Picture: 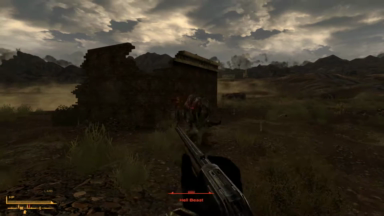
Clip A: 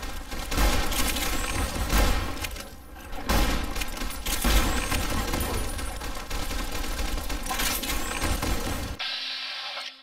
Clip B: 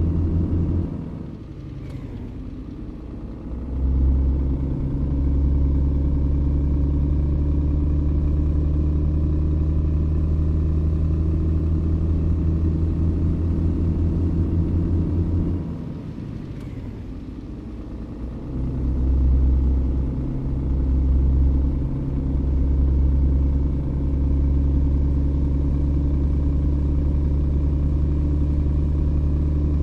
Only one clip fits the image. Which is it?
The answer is A